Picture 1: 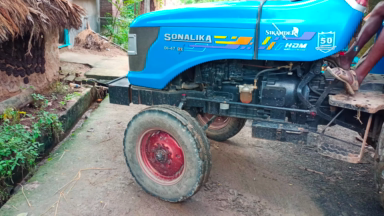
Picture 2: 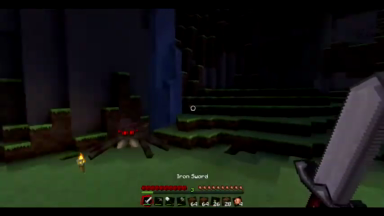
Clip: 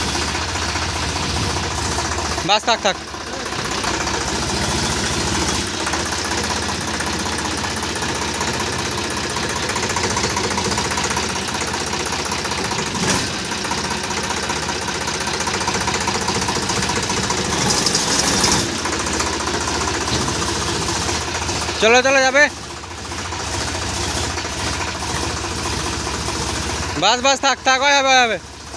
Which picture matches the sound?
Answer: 1